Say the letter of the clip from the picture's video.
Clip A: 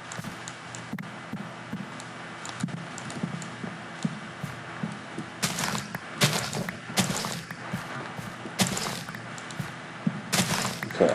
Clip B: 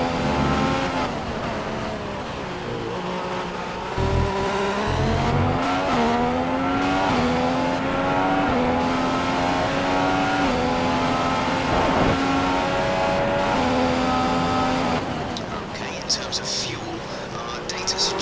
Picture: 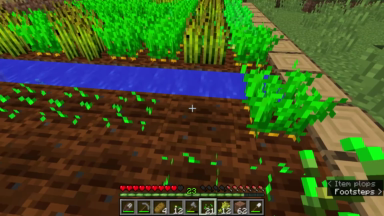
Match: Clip A